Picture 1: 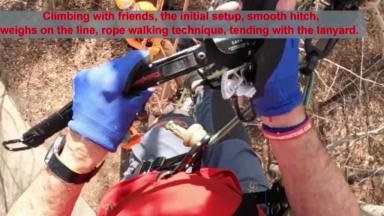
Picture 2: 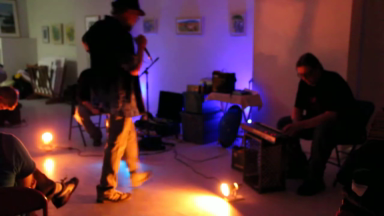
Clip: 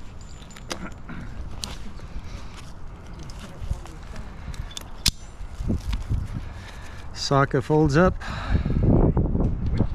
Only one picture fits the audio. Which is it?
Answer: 1